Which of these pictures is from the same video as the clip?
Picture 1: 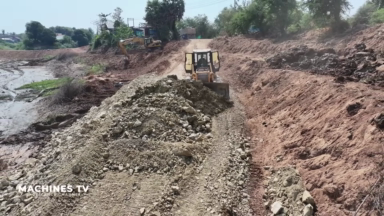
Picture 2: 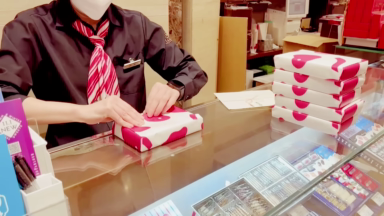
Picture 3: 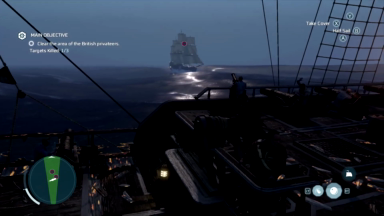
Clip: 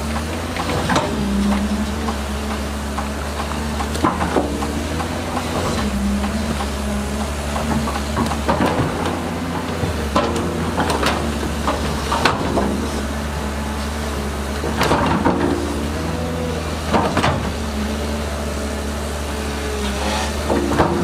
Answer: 1